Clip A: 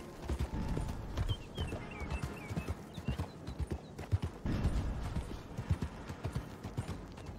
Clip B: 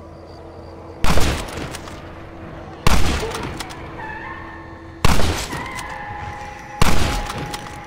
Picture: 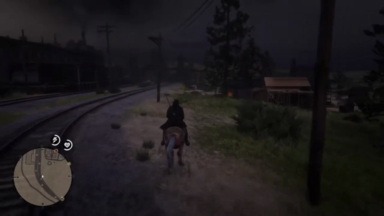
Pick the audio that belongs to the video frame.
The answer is A